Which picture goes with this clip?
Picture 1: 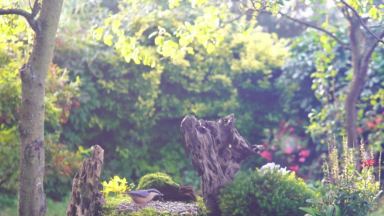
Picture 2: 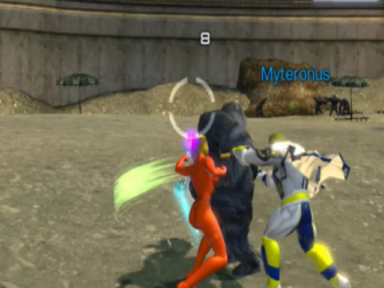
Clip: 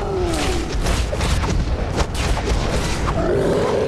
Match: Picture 2